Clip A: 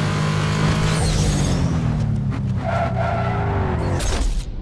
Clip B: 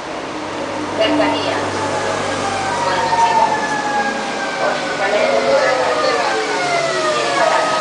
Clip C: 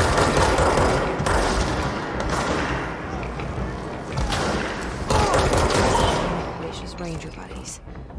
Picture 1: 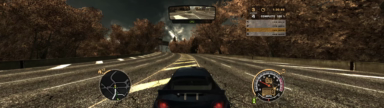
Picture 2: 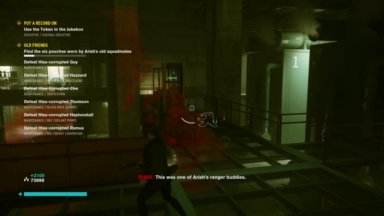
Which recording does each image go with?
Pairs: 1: A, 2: C